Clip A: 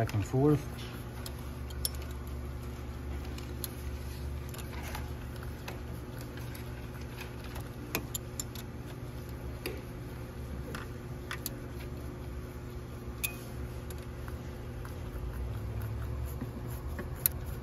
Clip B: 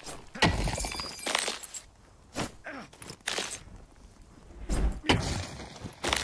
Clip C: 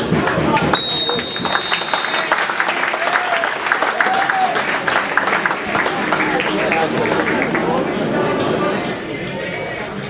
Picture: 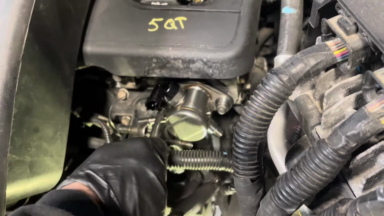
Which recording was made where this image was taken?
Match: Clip A